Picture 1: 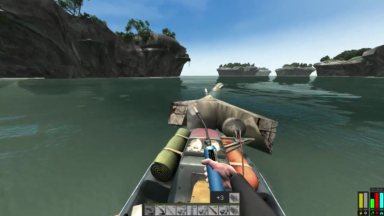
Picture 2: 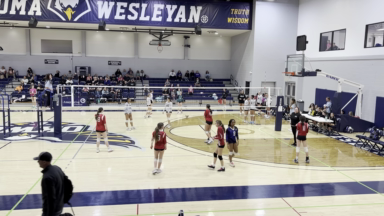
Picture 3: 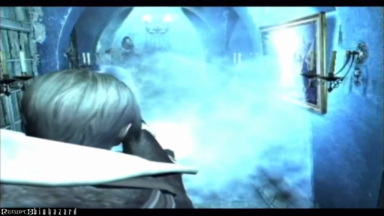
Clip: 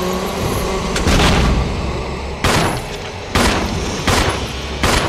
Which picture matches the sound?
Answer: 3